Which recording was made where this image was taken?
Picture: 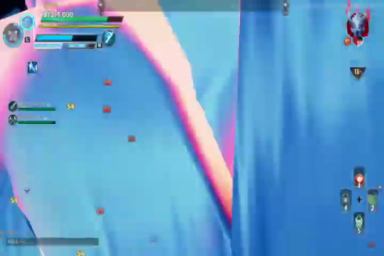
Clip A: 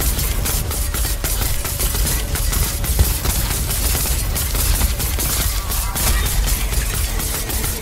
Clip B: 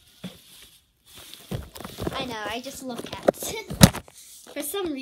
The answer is A